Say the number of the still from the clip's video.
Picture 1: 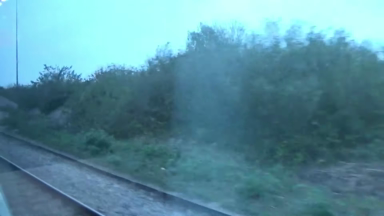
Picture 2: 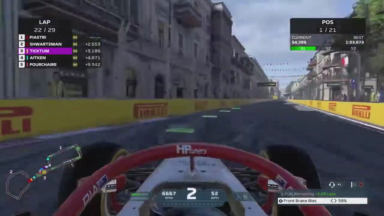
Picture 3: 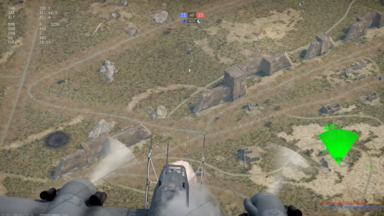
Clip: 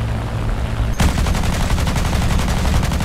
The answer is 3